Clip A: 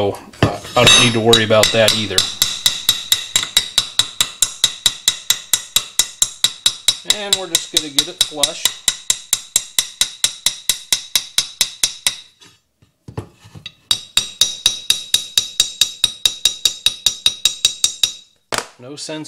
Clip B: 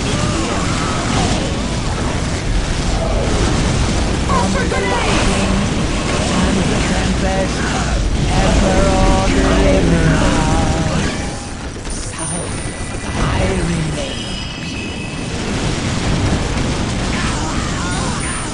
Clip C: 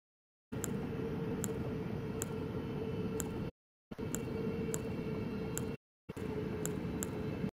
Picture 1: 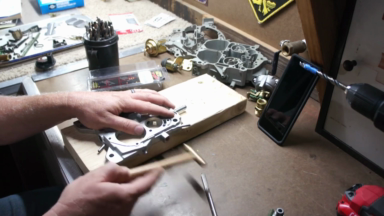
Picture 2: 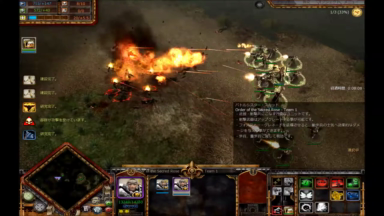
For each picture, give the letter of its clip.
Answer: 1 A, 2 B